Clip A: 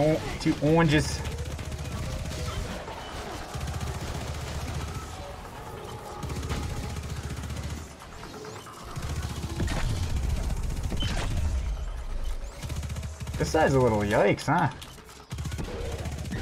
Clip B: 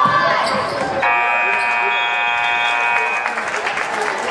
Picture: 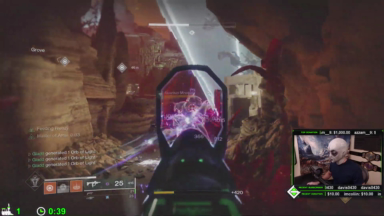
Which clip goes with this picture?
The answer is A